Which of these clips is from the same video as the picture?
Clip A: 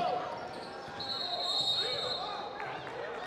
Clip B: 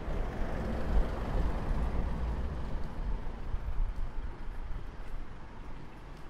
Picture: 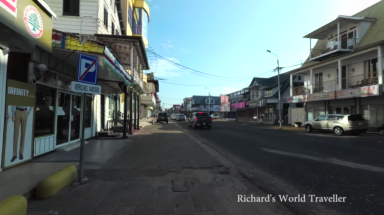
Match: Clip B